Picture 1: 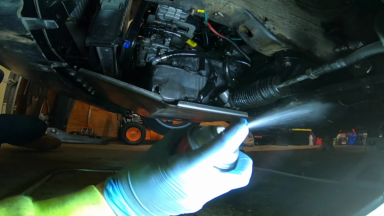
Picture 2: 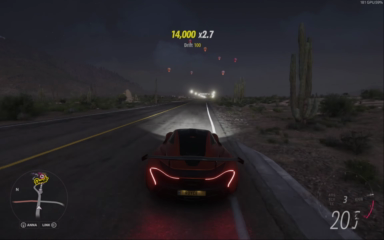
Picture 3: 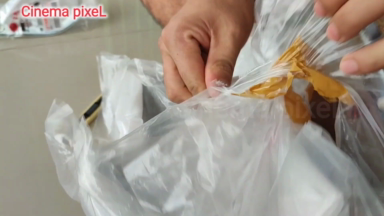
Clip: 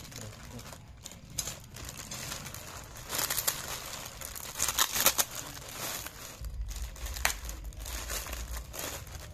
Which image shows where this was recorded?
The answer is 3